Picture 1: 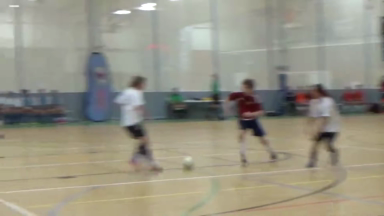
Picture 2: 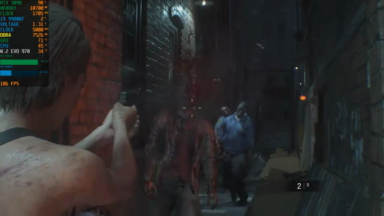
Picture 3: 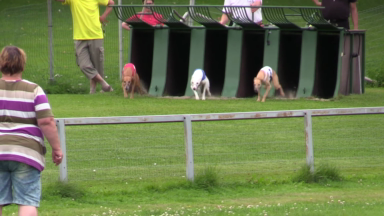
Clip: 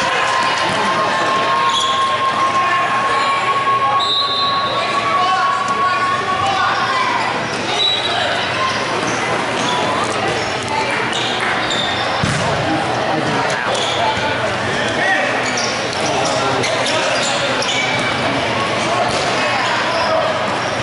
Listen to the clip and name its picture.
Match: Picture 1